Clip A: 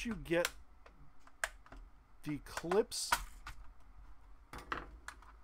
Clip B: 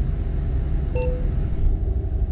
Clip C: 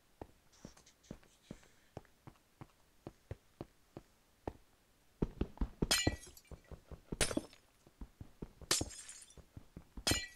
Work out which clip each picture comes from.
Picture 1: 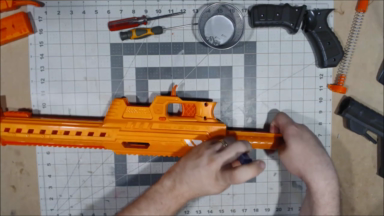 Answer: A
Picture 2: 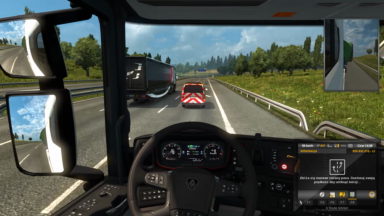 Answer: B